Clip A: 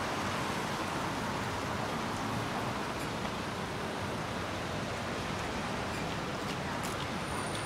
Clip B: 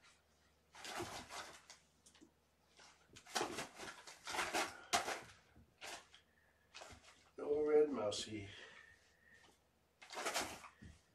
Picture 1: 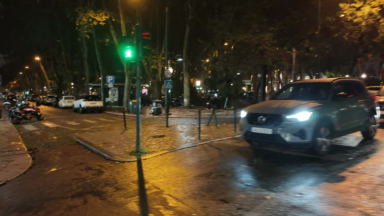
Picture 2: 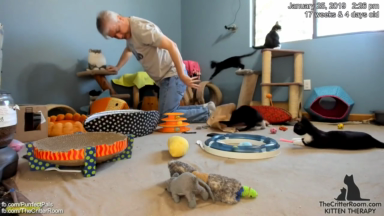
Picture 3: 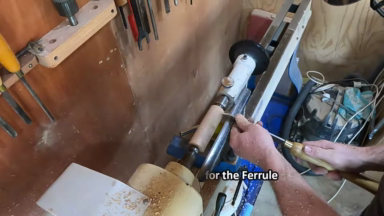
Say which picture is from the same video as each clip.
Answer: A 1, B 2